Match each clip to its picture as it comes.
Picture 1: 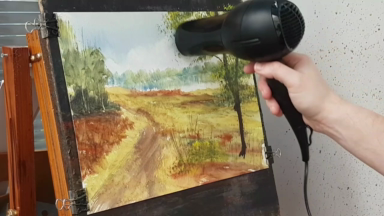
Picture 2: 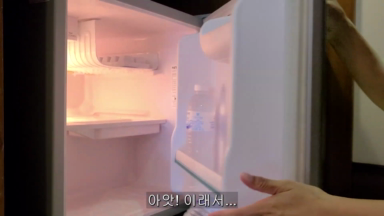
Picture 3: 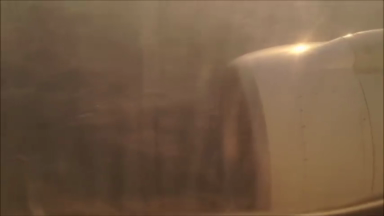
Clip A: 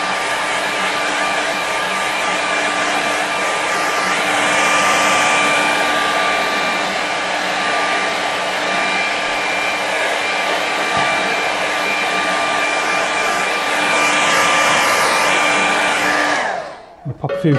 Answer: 1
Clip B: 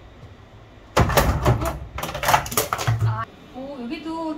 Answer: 2